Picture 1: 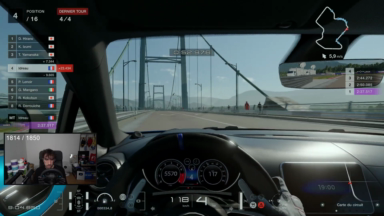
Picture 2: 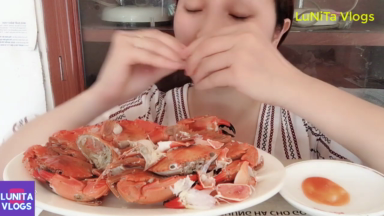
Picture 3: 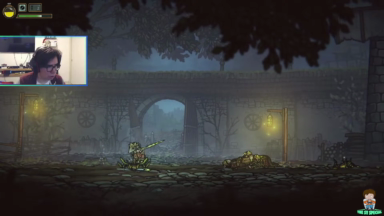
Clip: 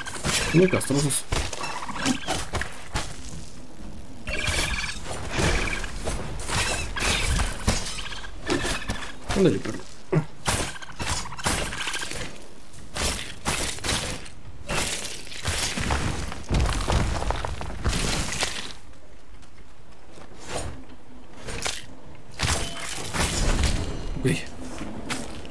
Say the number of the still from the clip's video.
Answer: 3